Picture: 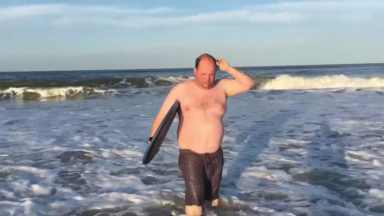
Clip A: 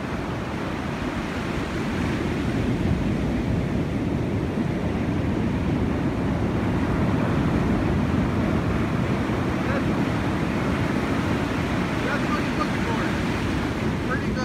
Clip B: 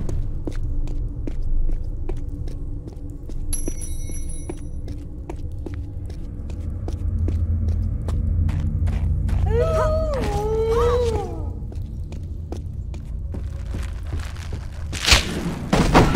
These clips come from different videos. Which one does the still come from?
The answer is A